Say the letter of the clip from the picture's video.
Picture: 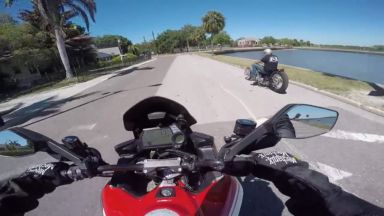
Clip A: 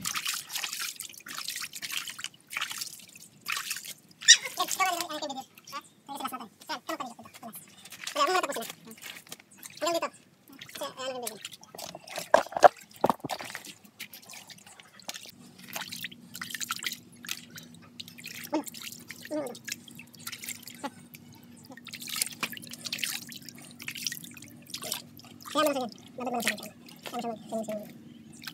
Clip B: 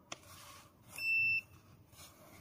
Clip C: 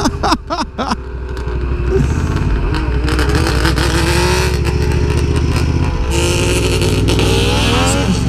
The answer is C